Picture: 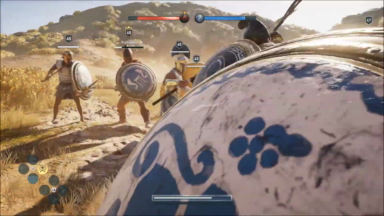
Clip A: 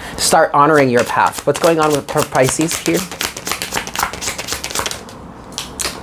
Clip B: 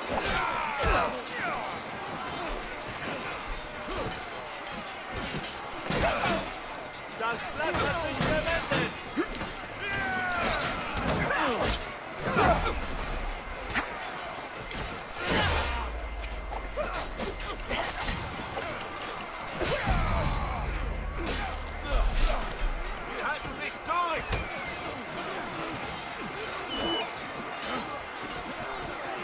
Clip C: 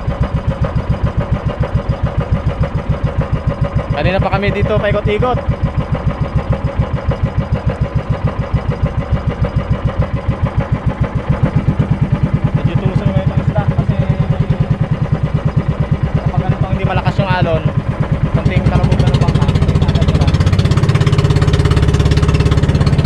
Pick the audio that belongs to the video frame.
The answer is B